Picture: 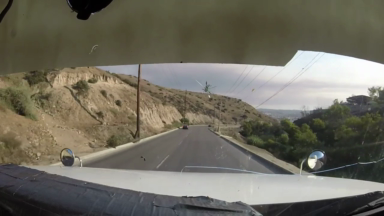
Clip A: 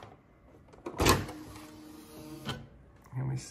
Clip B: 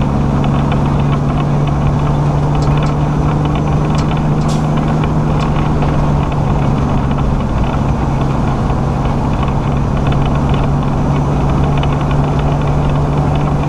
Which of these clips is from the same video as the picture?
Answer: B